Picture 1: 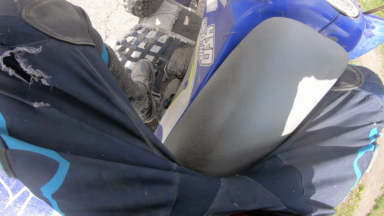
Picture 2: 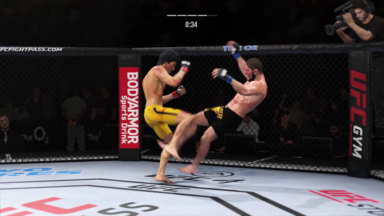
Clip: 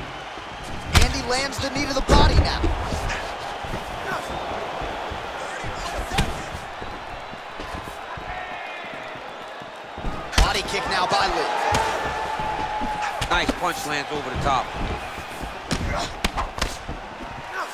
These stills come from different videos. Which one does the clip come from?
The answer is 2